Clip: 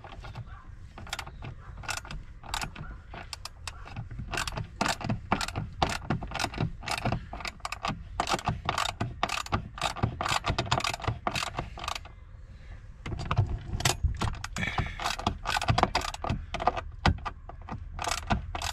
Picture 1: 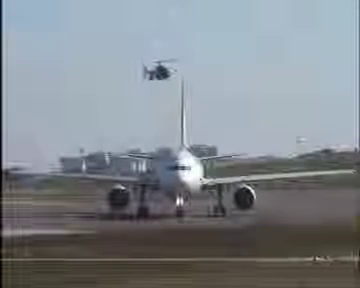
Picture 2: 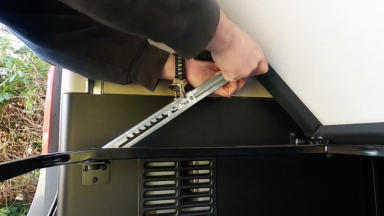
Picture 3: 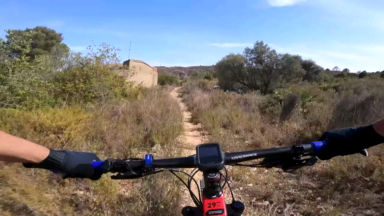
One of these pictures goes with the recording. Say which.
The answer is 2